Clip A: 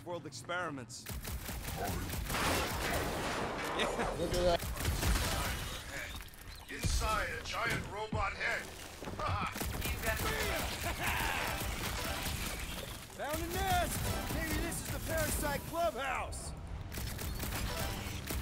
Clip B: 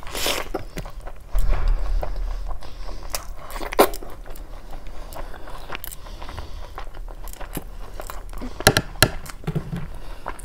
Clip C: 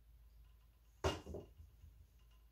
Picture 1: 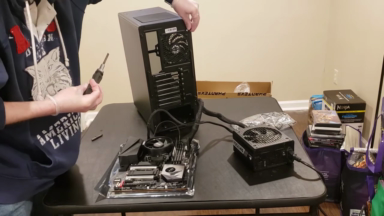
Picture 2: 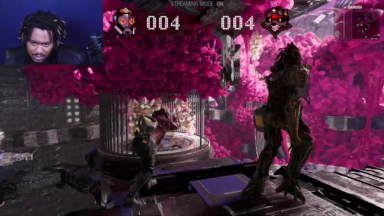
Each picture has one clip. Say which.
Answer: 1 C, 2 A